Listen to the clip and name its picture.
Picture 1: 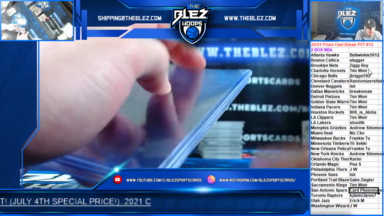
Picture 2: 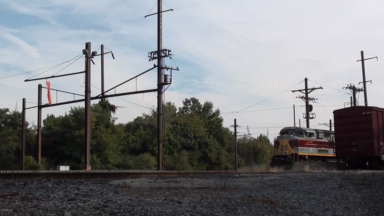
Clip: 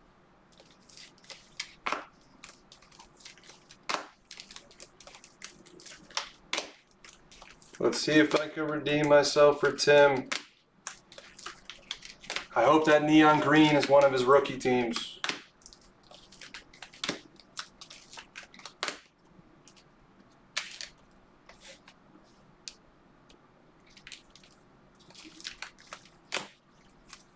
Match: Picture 1